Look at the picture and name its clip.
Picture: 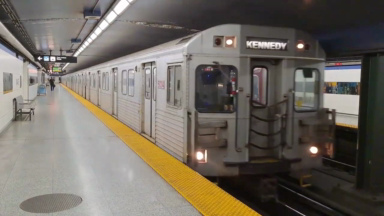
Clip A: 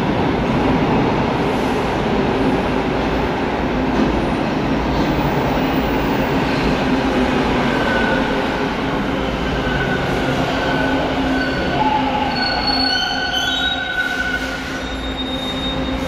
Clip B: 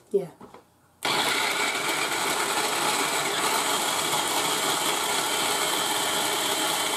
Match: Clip A